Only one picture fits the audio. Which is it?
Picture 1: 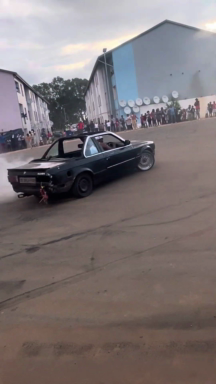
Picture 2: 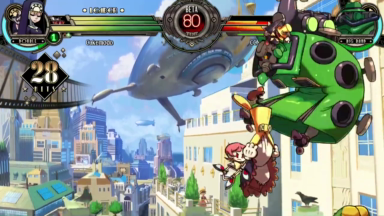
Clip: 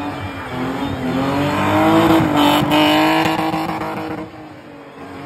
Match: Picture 1